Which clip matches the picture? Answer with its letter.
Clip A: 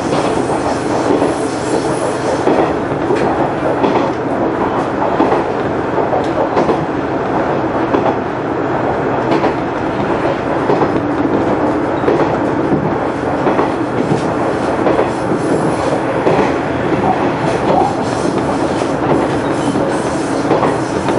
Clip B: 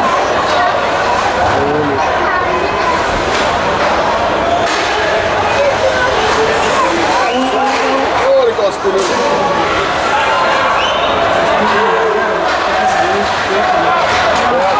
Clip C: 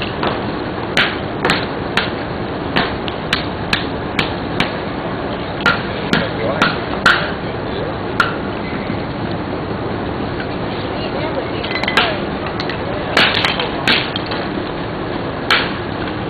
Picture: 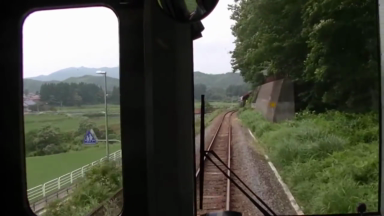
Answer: A